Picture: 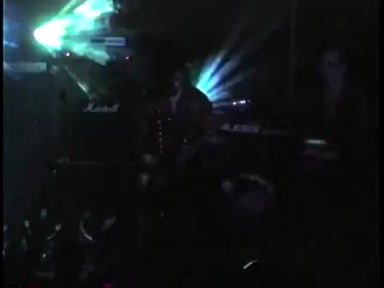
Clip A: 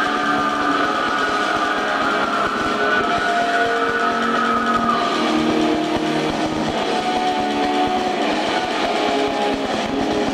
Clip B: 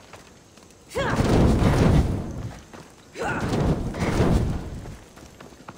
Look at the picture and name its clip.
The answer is A